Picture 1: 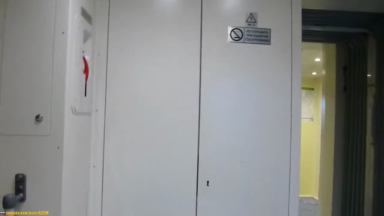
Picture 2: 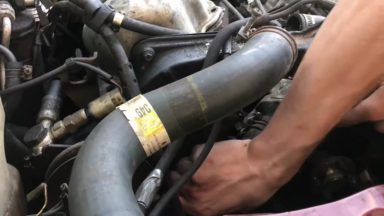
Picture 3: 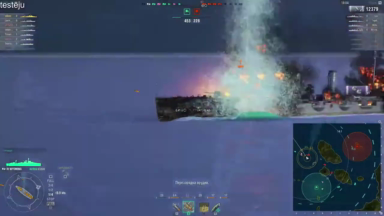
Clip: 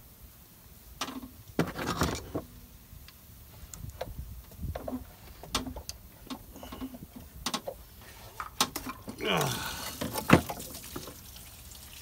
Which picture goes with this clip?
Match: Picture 2